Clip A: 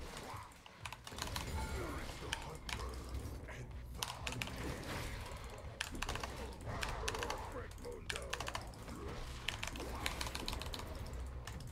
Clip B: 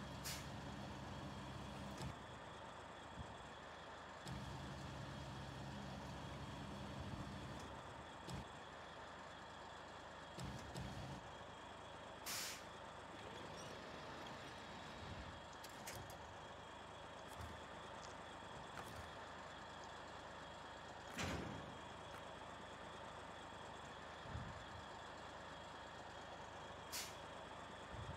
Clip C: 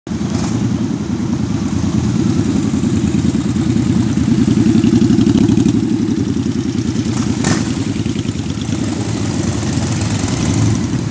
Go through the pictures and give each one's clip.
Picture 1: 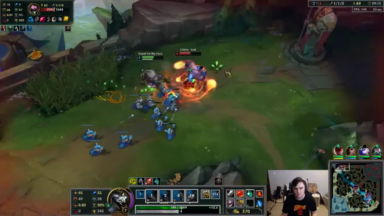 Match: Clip A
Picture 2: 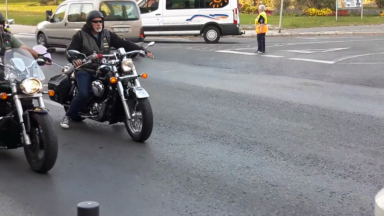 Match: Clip C